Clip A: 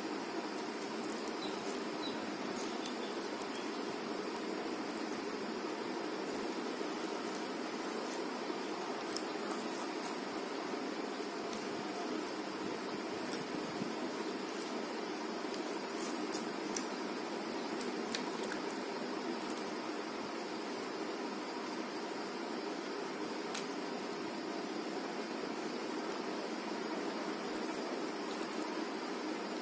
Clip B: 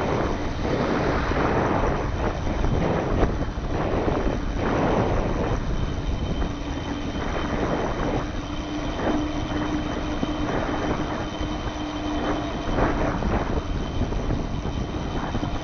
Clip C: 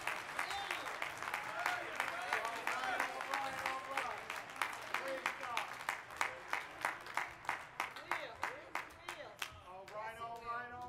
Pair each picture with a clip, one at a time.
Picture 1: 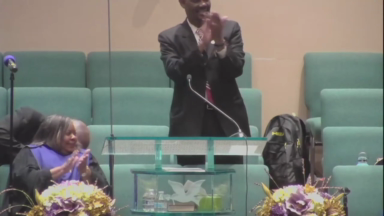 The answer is C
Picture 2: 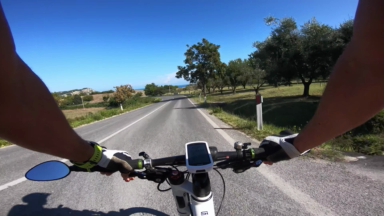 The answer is B